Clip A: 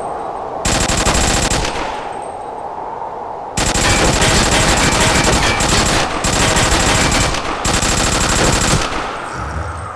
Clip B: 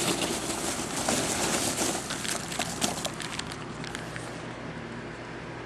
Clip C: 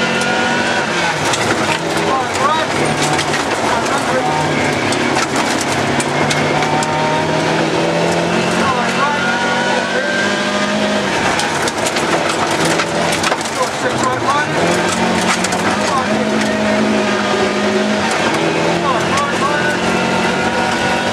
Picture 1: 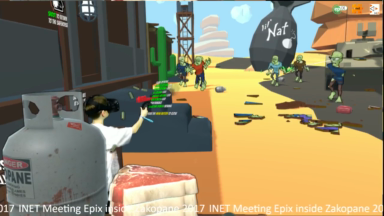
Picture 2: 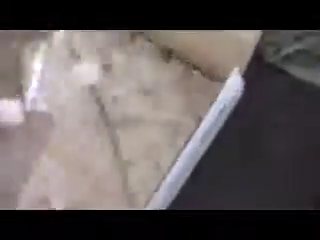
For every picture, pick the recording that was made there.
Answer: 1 A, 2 B